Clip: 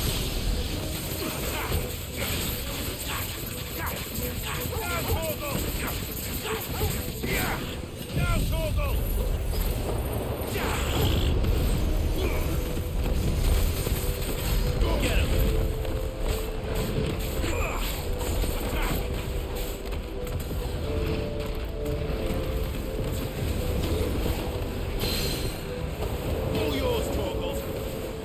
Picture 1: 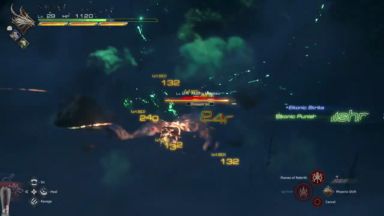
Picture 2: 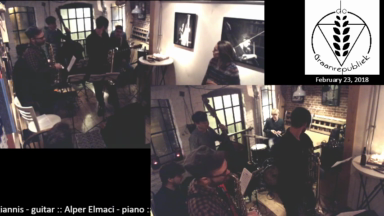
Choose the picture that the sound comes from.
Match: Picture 1